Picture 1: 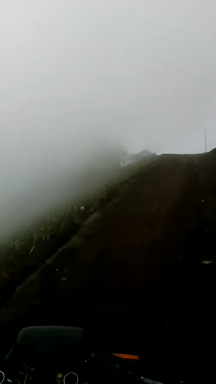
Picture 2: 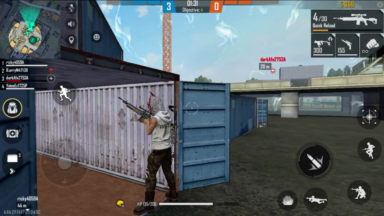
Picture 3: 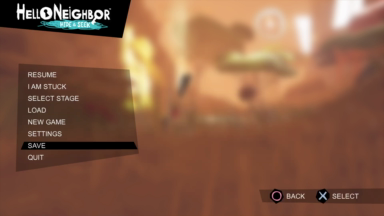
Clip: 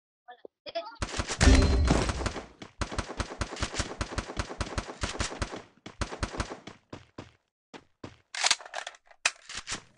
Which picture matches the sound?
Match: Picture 2